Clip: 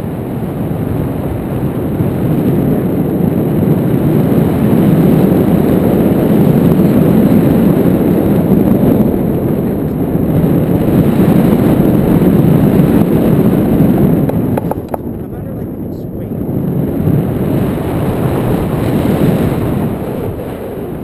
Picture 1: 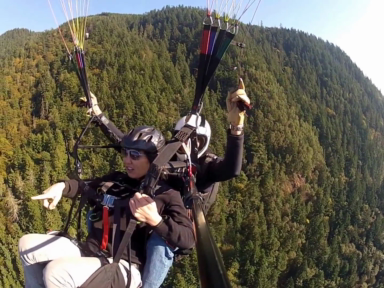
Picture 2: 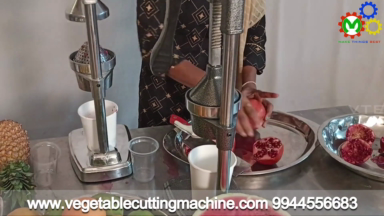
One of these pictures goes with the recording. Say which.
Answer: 1